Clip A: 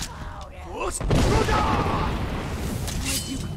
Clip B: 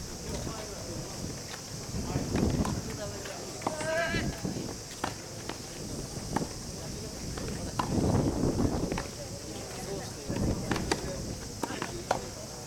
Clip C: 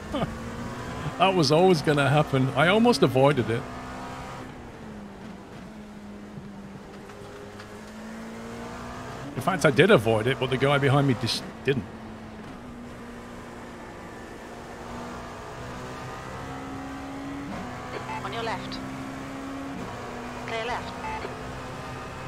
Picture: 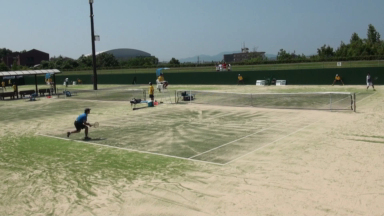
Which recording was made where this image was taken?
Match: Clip B